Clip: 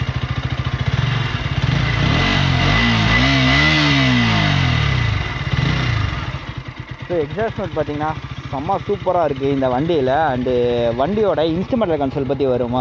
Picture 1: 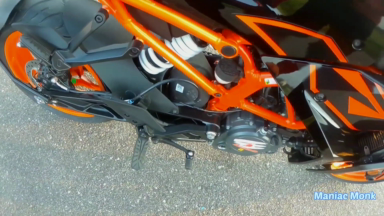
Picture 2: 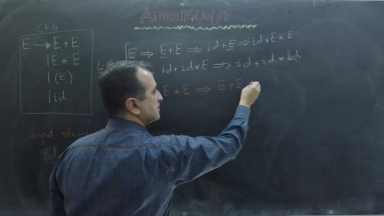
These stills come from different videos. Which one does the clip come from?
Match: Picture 1